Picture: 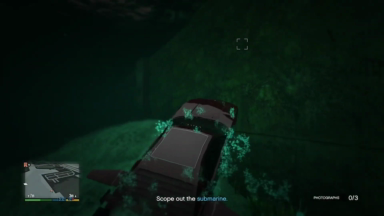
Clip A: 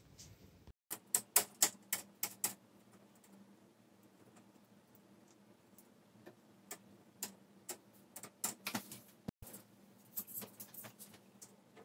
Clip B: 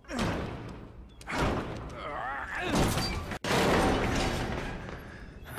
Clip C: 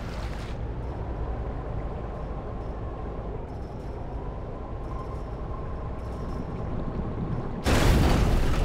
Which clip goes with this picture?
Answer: C